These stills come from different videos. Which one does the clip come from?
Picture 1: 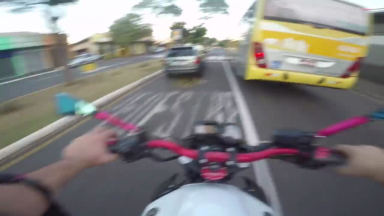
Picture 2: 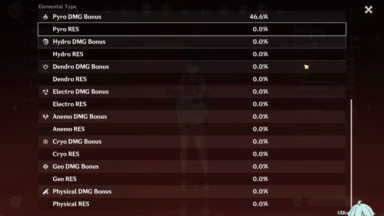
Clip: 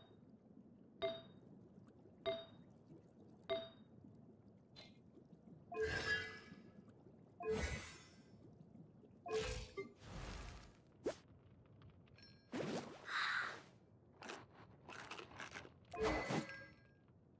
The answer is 2